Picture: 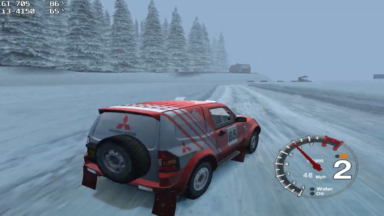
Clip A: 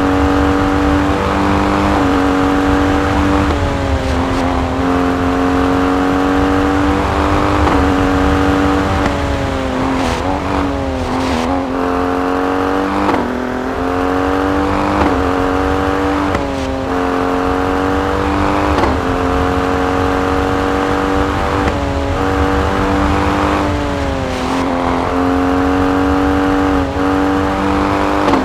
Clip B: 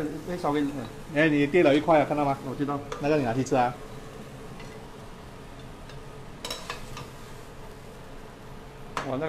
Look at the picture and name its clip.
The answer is A